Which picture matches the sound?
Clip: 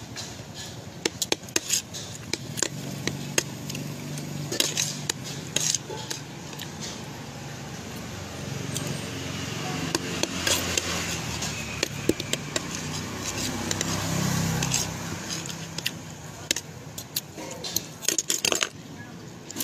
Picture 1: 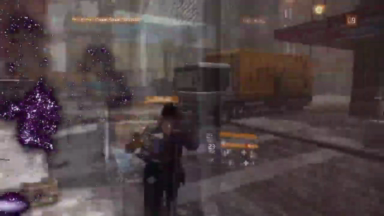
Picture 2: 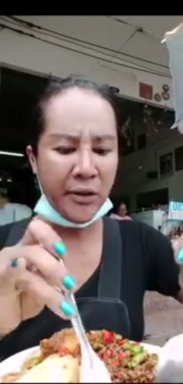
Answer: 2